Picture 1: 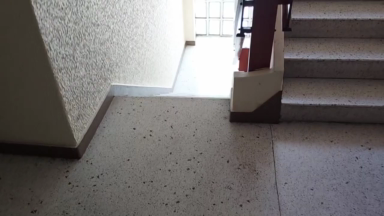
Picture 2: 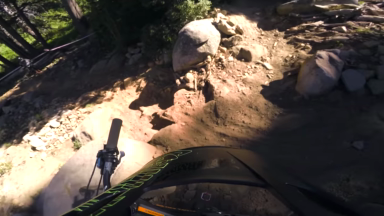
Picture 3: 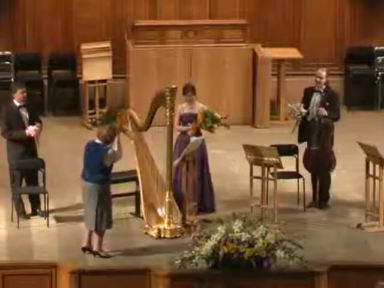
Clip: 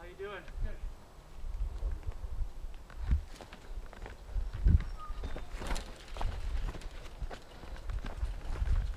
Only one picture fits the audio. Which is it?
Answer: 2